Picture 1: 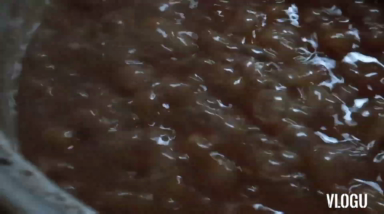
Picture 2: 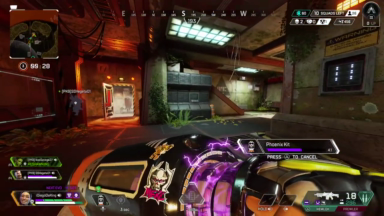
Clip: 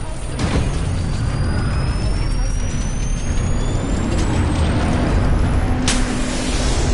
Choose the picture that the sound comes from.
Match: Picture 2